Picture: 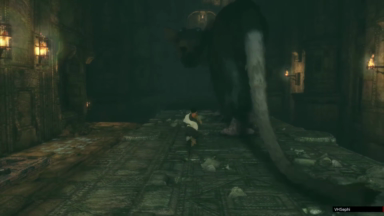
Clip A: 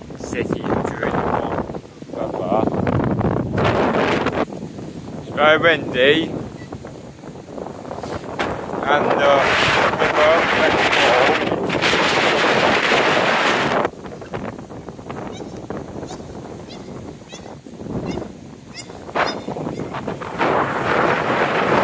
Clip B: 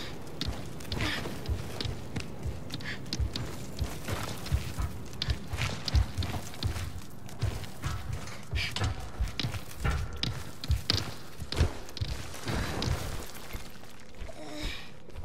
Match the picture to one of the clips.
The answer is B